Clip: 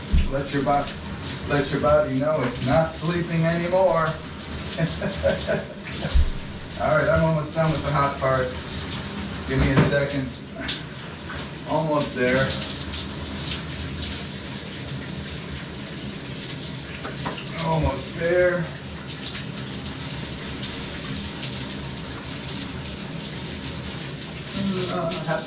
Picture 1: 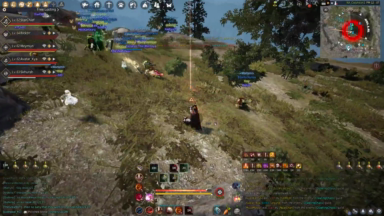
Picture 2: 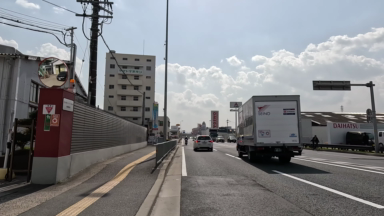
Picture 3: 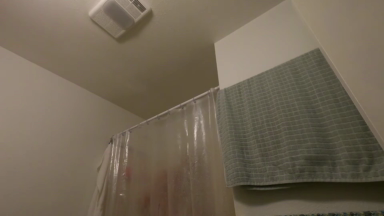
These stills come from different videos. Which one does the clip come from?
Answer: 3